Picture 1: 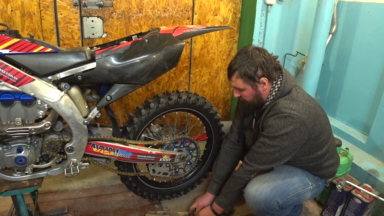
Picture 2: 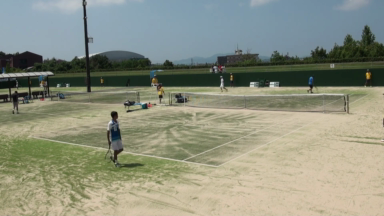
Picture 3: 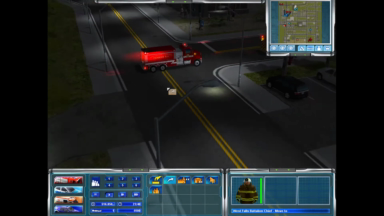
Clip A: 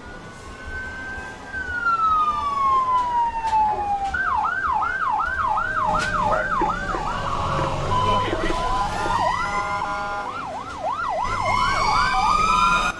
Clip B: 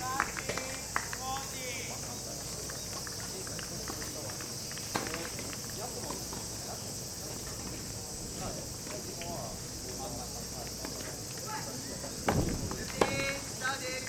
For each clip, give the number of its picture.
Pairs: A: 3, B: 2